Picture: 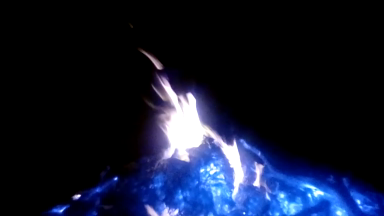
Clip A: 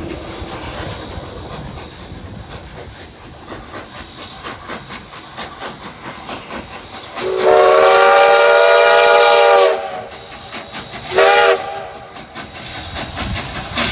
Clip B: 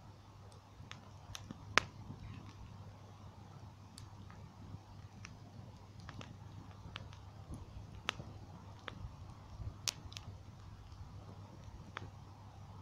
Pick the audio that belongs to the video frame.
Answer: B